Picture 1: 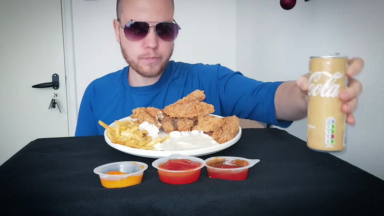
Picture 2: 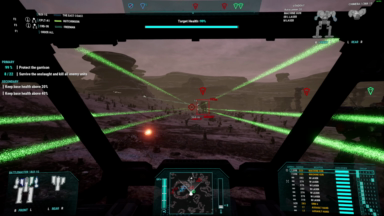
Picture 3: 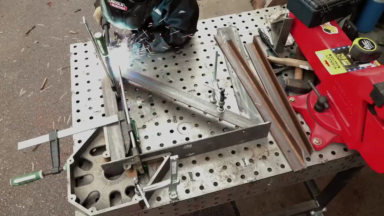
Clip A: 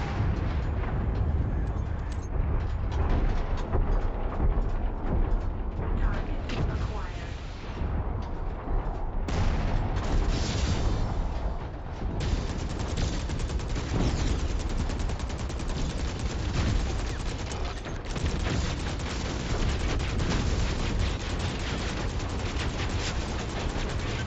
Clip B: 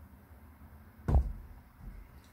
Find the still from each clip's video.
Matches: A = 2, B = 1